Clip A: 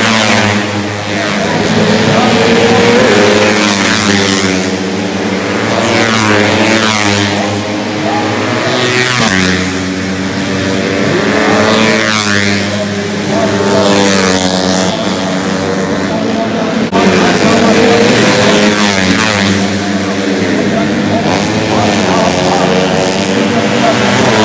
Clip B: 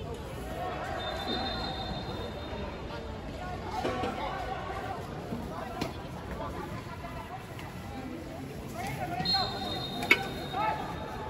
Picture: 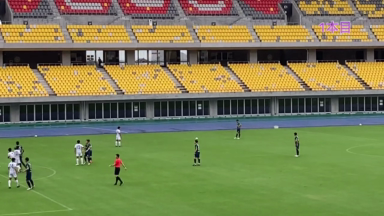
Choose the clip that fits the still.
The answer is B